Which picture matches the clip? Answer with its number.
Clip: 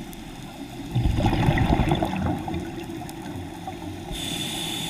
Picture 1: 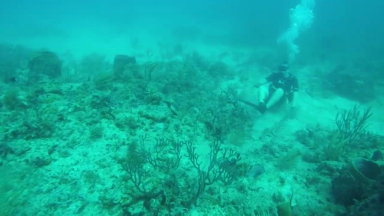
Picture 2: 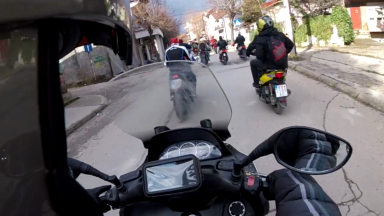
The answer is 1